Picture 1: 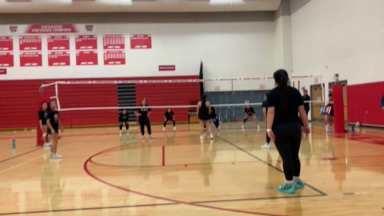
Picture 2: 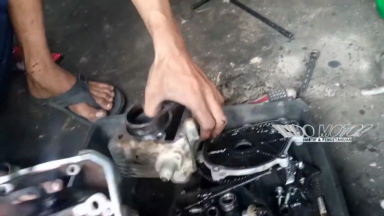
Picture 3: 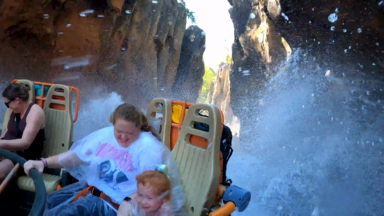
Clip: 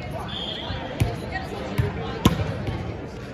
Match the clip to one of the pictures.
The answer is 1